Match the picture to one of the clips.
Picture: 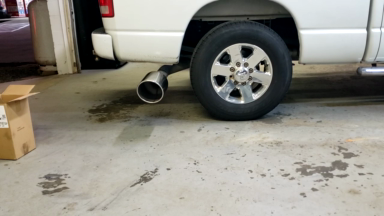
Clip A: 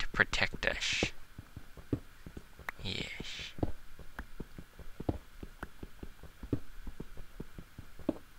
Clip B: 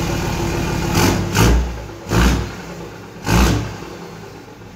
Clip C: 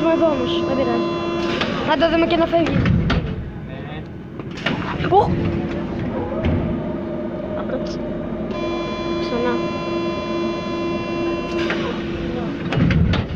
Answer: B